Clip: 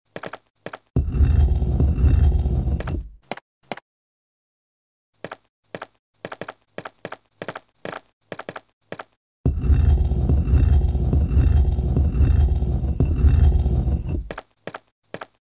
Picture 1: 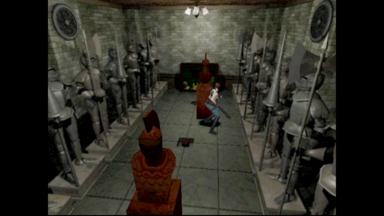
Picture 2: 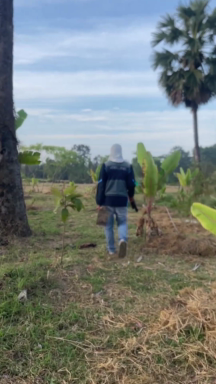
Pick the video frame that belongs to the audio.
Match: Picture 1